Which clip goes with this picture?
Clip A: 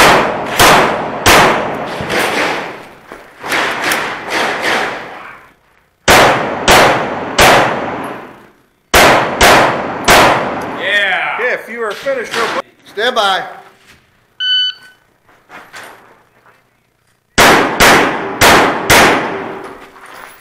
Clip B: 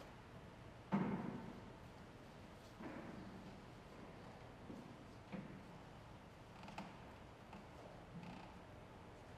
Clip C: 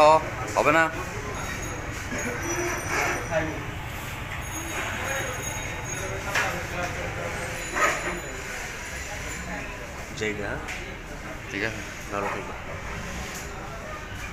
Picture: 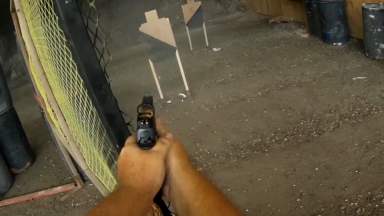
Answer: A